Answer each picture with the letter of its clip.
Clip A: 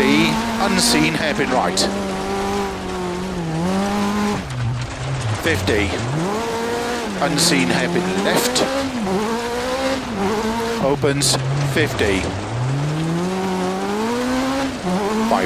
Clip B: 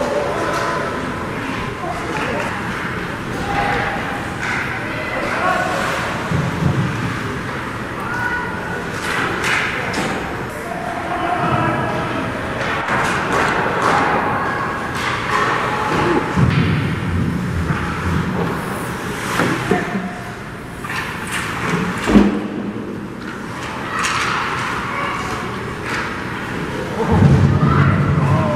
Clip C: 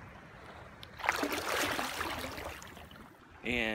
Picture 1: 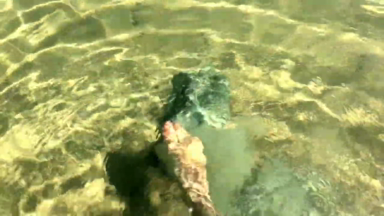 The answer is C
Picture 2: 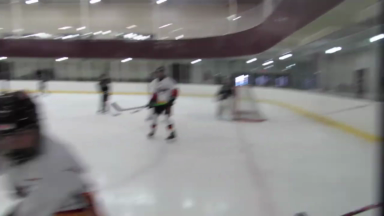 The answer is B